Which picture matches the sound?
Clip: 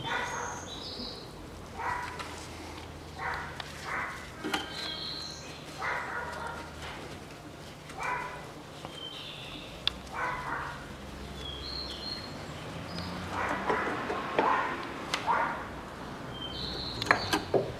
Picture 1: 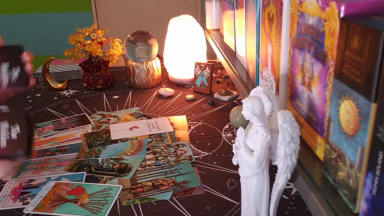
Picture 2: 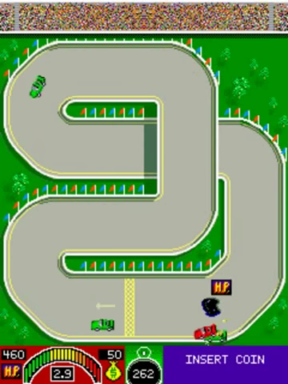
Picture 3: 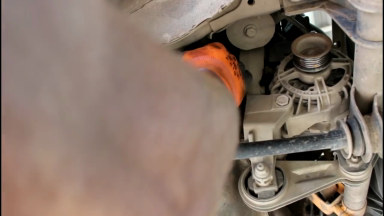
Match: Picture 3